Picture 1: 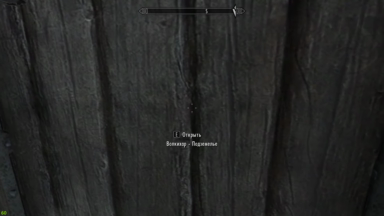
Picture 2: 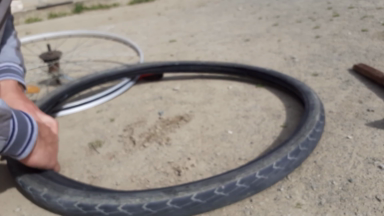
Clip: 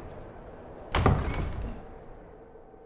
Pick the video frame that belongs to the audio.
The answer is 1